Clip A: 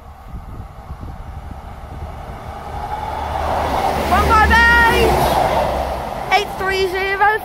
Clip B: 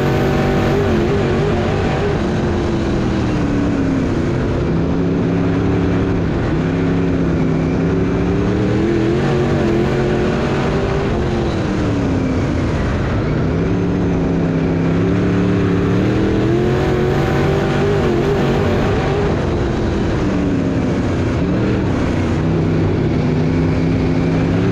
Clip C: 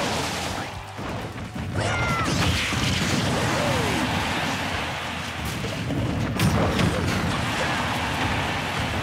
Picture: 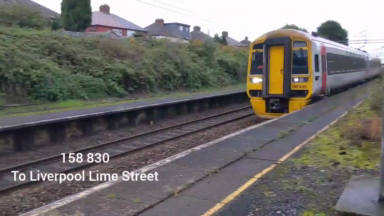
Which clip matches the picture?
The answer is A